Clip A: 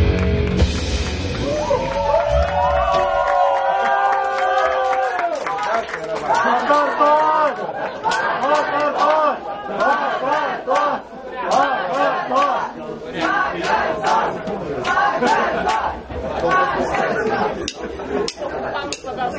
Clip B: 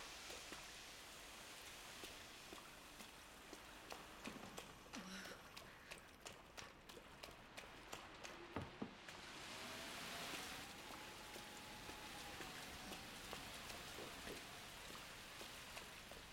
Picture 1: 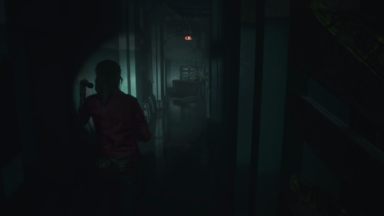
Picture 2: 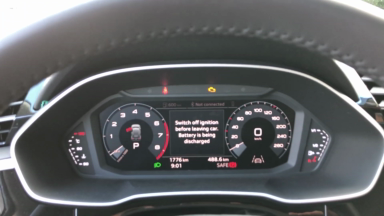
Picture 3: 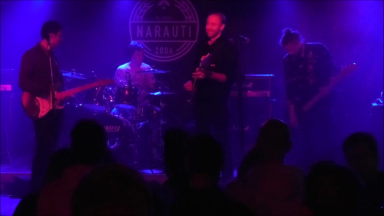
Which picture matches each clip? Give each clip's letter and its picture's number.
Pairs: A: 3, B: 1